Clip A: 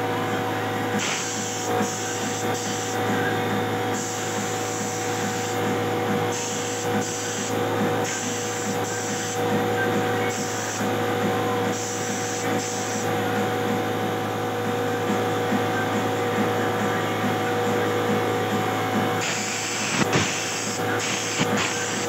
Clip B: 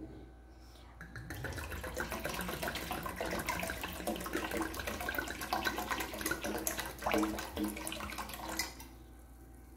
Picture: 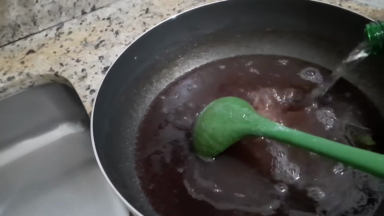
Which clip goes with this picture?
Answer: B